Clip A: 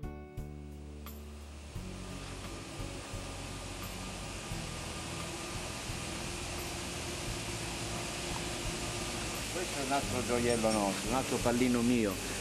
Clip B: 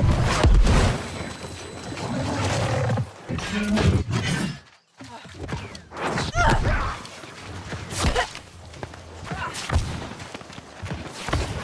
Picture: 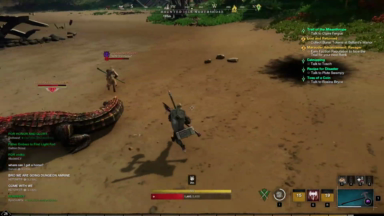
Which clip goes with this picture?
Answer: B